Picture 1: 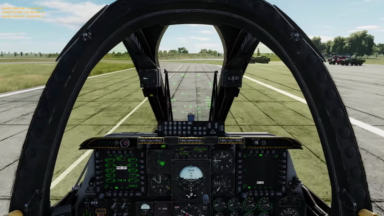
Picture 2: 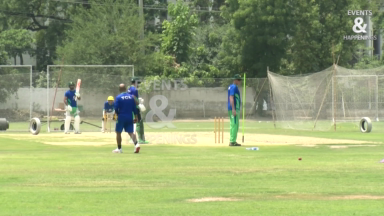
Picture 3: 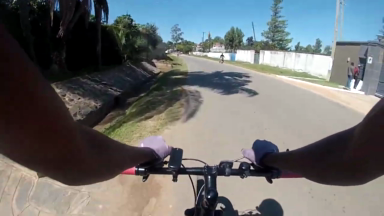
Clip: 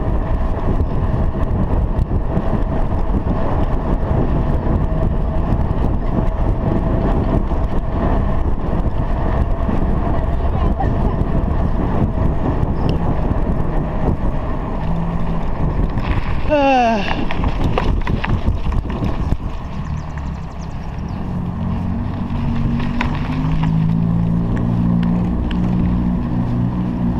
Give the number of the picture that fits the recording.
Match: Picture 3